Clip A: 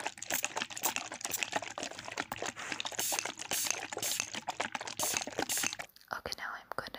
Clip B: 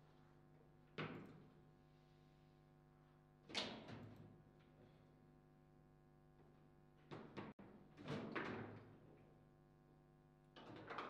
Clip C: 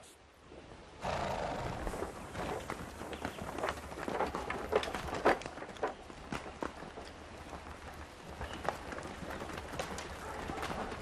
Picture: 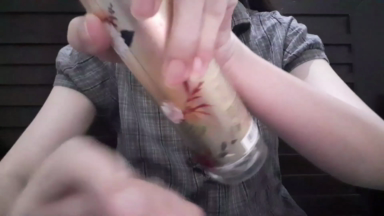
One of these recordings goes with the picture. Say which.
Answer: A